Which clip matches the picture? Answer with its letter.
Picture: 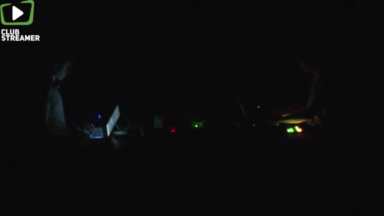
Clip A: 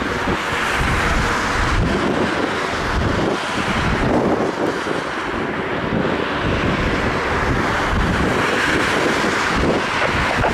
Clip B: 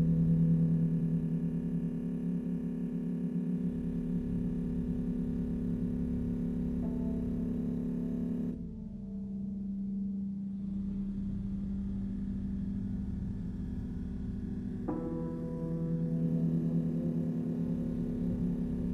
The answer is B